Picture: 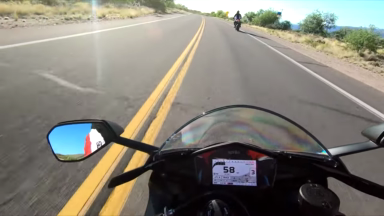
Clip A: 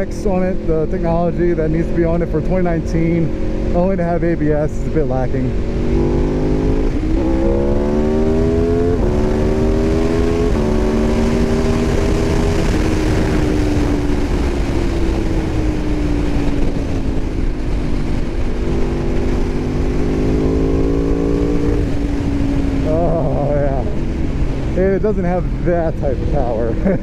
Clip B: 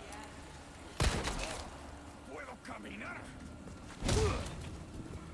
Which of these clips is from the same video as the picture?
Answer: A